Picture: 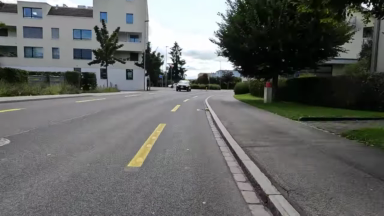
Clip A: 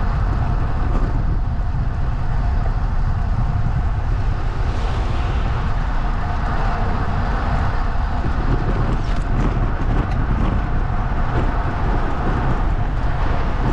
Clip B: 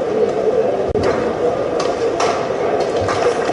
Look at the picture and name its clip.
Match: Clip A